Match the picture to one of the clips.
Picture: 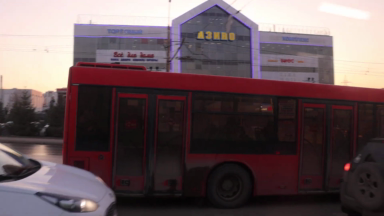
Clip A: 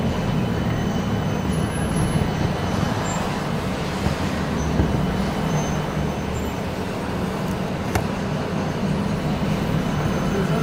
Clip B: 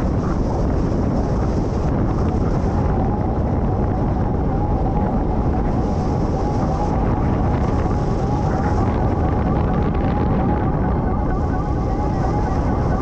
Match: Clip A